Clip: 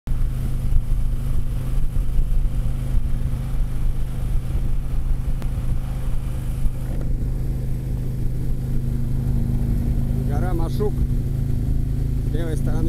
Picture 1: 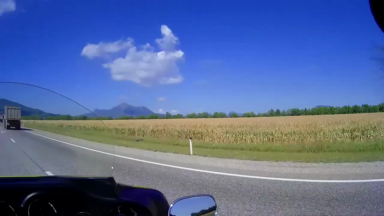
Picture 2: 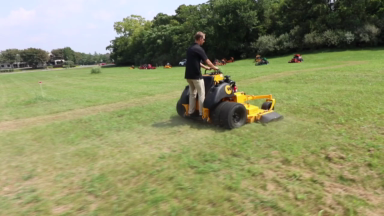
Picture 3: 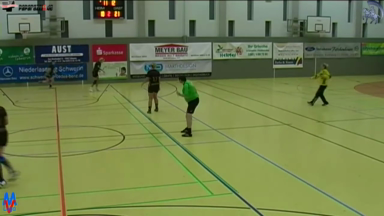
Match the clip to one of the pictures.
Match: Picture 1